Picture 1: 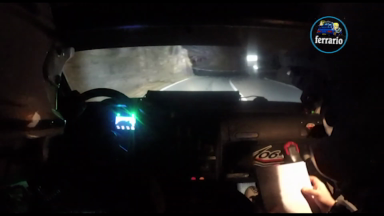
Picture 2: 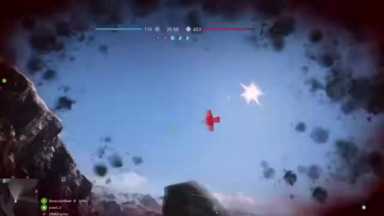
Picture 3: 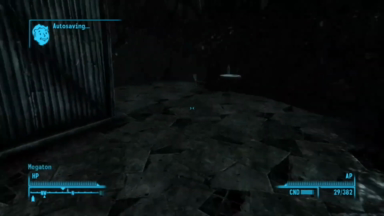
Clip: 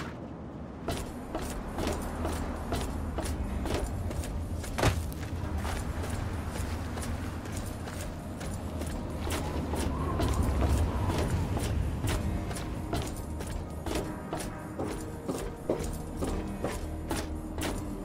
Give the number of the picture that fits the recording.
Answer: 3